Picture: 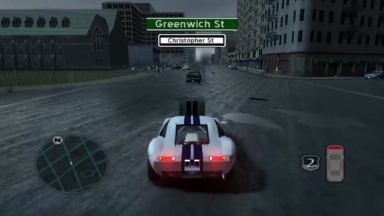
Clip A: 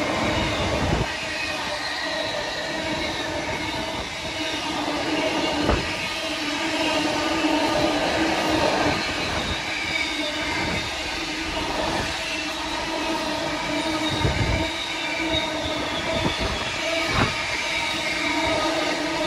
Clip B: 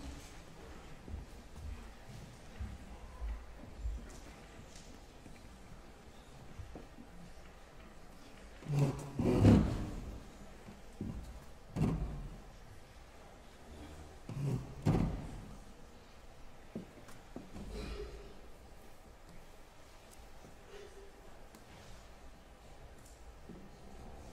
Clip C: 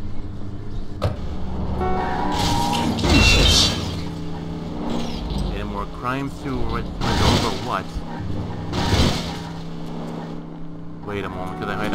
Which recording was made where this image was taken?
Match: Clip C